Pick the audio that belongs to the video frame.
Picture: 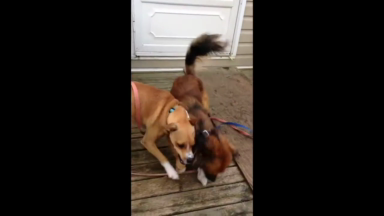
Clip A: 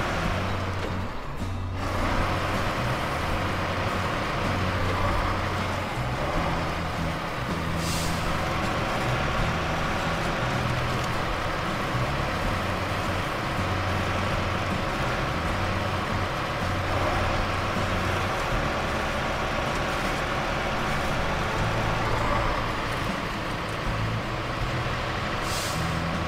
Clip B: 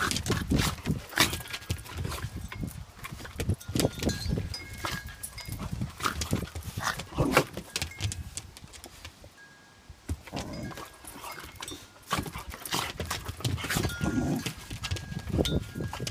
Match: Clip B